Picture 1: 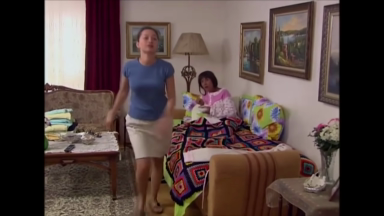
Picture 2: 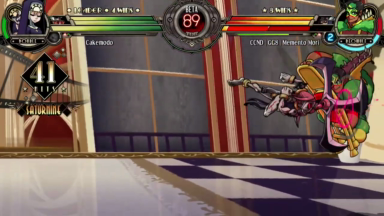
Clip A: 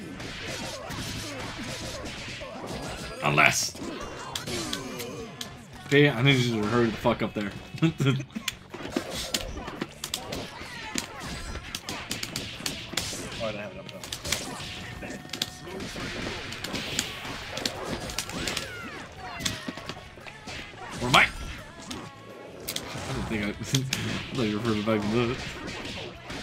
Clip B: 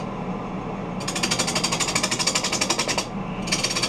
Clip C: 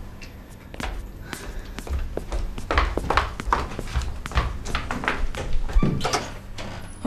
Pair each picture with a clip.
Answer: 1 C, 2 A